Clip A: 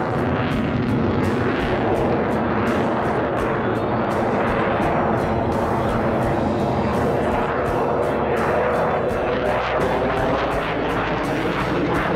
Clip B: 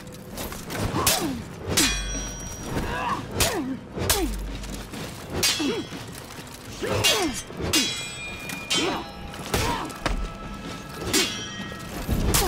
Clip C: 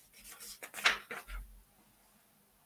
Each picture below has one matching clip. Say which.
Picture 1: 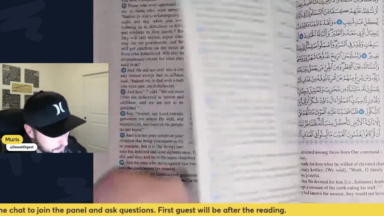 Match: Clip C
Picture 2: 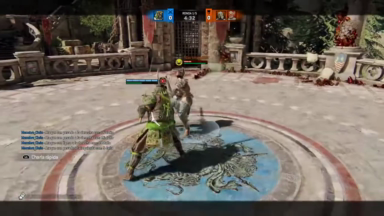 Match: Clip B